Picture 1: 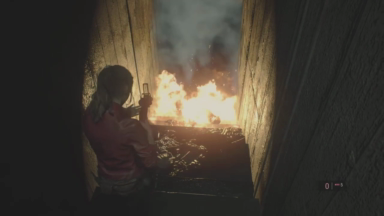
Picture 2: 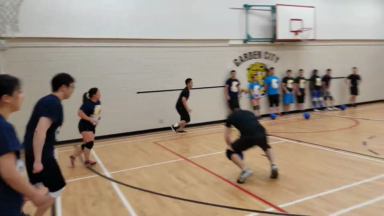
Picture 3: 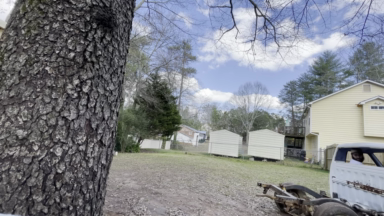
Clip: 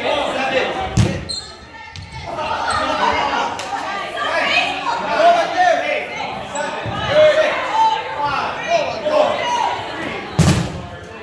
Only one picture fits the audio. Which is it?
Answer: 2